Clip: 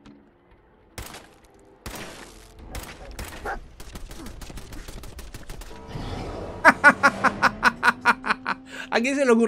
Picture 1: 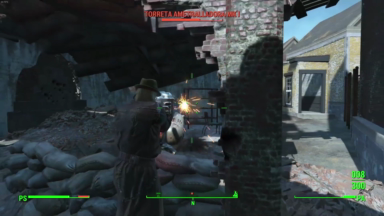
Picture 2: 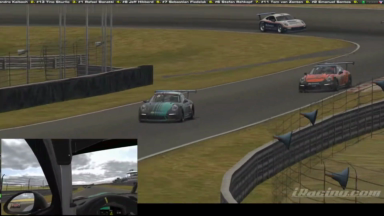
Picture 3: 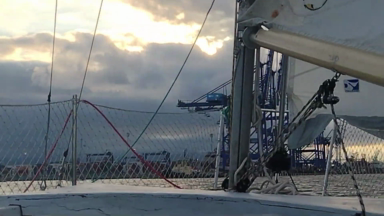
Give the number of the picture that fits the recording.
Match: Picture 1